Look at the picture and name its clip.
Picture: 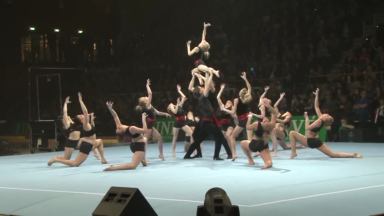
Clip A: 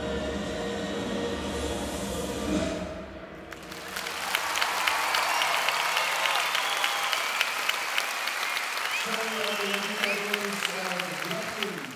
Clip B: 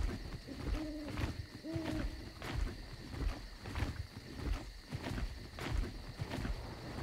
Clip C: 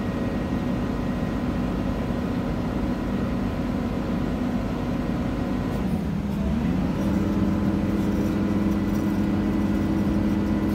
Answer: A